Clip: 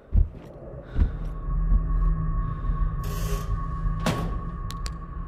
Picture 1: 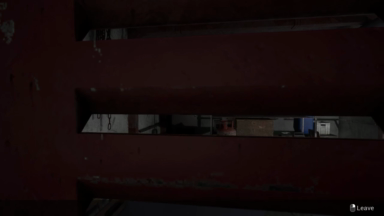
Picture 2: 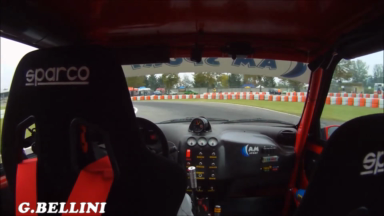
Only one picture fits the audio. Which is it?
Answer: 1